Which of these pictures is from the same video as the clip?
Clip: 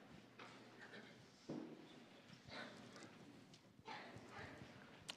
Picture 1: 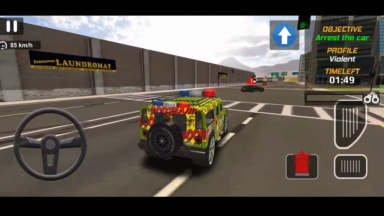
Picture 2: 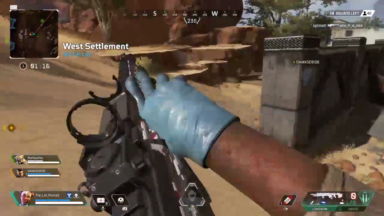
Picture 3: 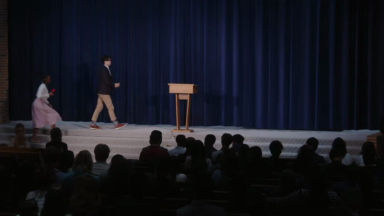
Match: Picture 3